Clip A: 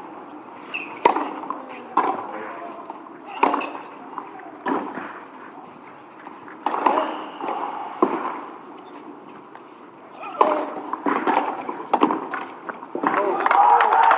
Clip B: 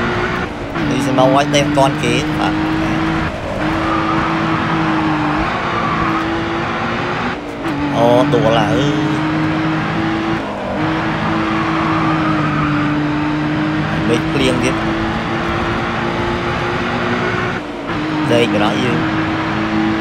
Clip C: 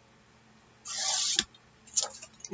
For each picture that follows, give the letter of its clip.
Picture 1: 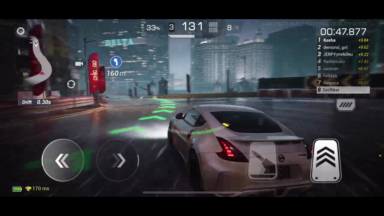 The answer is B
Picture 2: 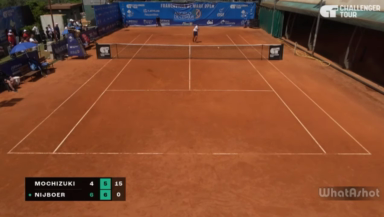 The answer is A